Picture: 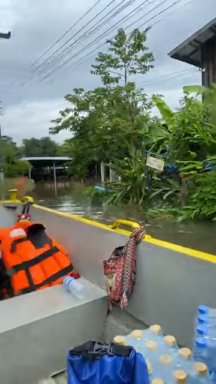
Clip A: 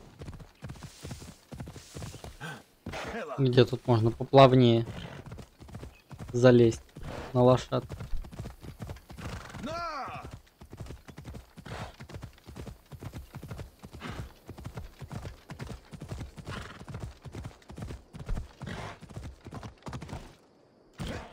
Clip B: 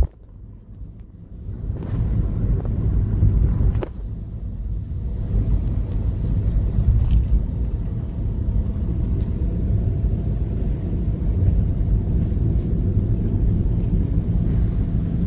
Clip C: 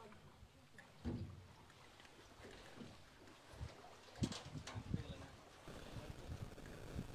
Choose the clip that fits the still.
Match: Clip C